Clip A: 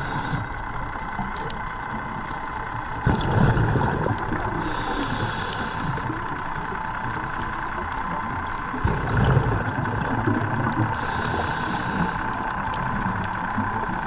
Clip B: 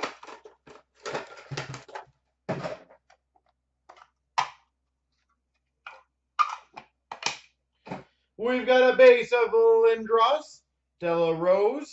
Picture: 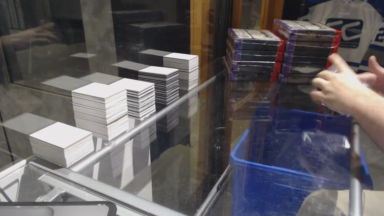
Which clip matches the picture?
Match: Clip B